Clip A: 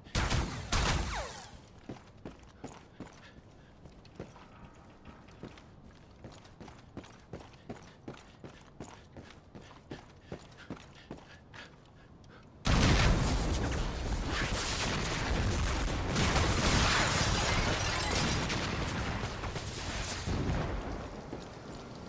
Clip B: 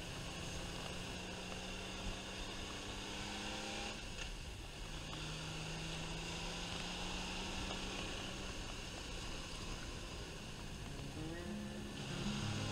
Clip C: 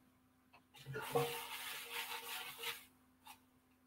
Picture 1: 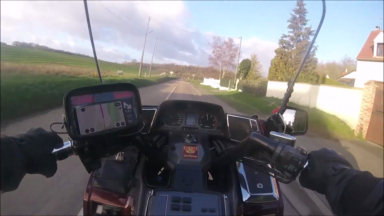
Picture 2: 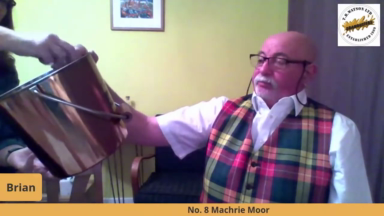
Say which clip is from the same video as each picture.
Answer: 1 B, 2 C